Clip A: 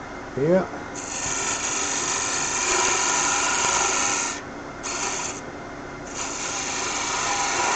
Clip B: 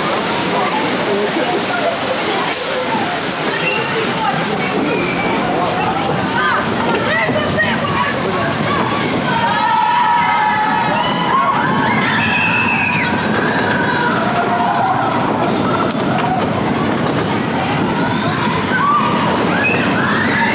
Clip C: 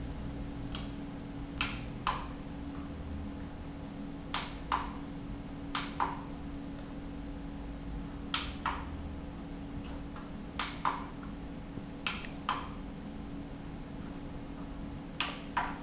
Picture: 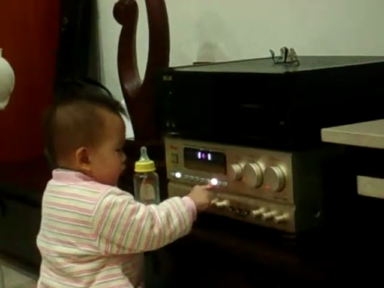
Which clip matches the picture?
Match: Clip C